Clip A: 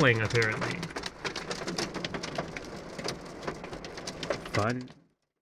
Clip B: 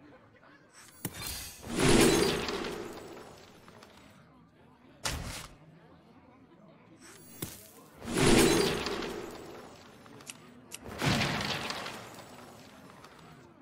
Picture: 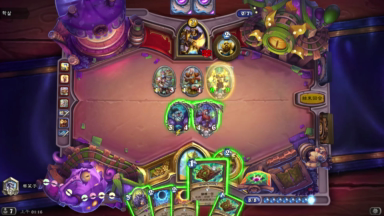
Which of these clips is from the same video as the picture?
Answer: B